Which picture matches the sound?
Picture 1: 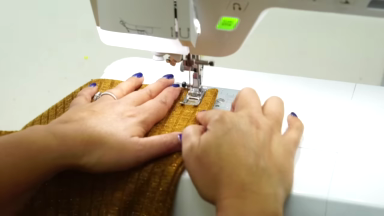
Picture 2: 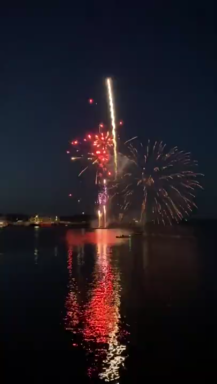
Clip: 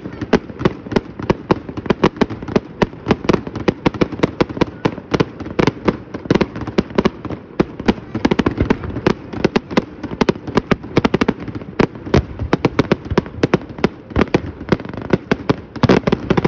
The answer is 2